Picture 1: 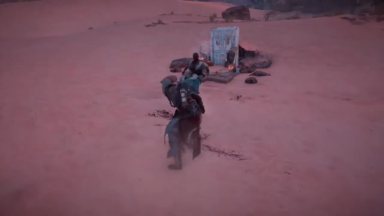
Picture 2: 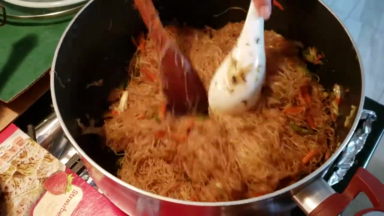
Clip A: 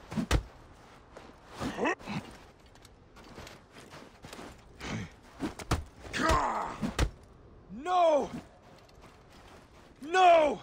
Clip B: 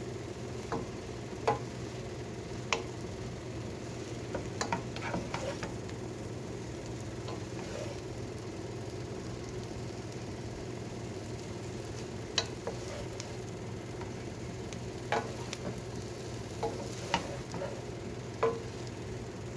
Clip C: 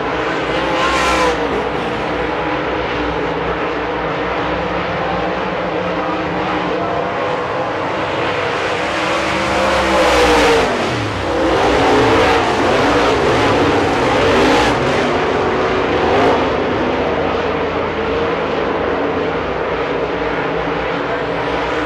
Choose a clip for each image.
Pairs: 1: A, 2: B